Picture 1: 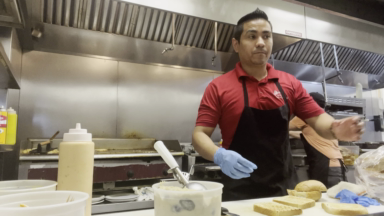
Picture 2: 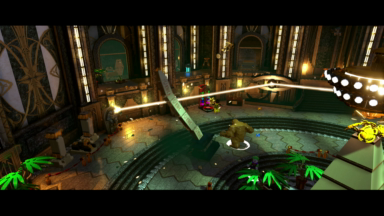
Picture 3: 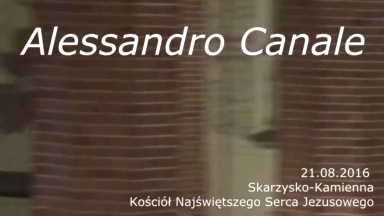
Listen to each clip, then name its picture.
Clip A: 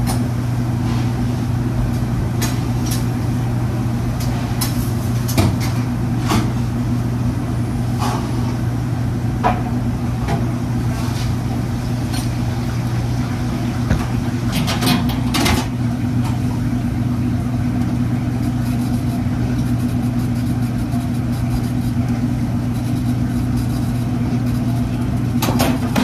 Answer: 1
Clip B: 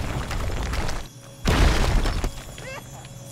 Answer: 2